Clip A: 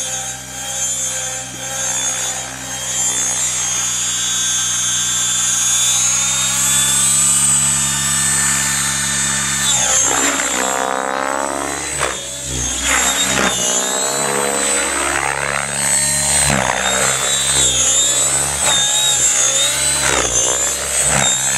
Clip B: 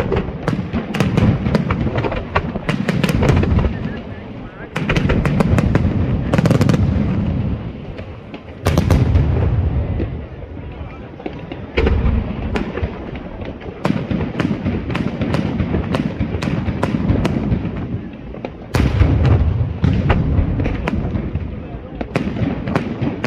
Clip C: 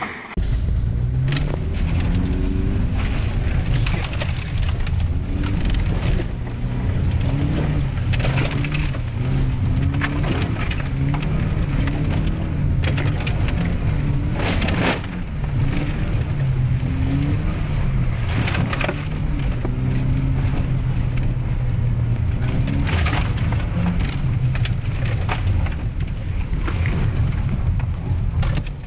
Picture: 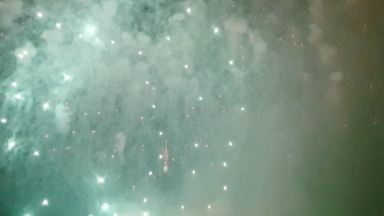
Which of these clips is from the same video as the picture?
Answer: B